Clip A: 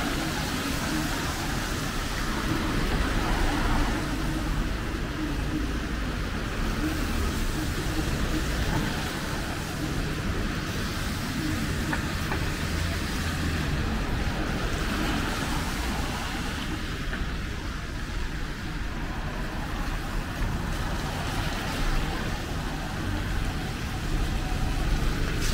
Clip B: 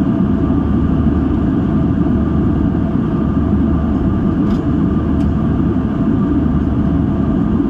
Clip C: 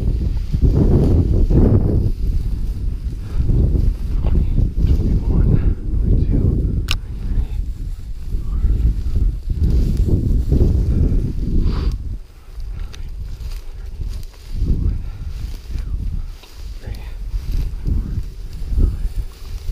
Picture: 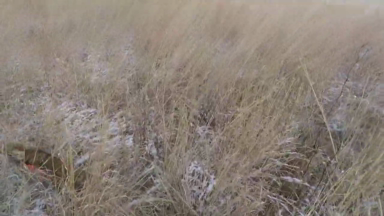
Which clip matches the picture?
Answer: C